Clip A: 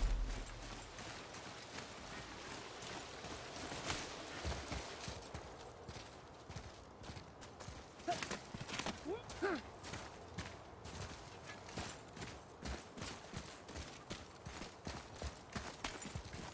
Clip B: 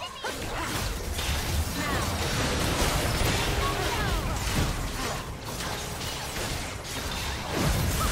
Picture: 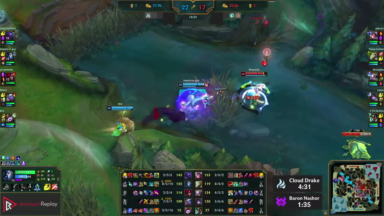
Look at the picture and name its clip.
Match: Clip B